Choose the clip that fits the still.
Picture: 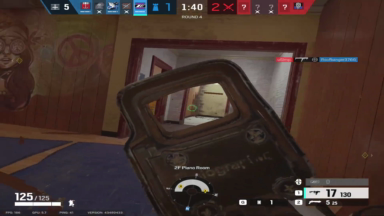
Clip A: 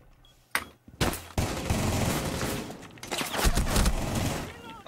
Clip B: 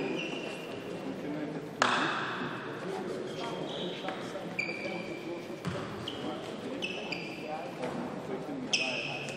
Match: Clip A